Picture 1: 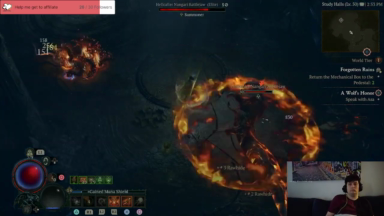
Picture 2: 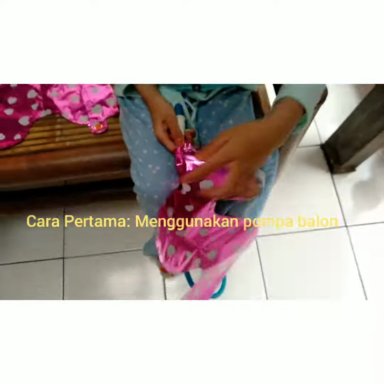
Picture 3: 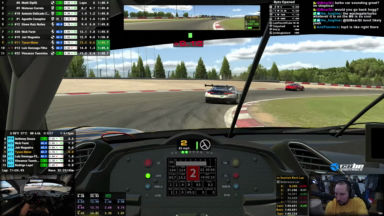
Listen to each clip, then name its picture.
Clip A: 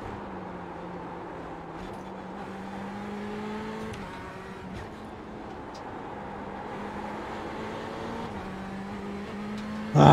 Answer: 3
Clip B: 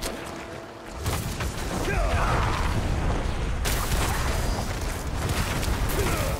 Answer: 1